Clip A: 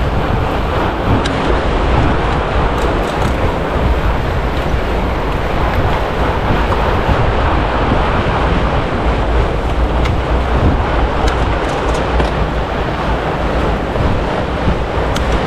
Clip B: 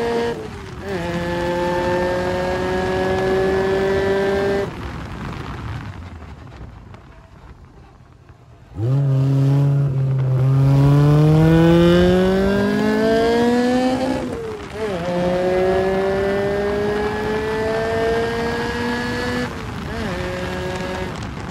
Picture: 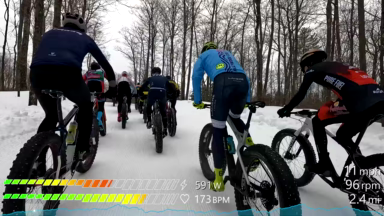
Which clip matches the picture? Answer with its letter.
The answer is A